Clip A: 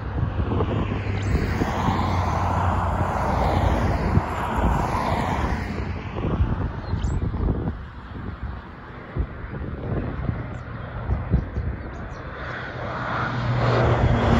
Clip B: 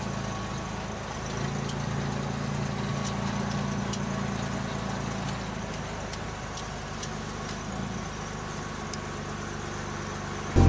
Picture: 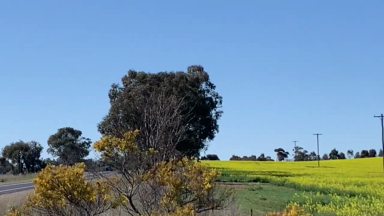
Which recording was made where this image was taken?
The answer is A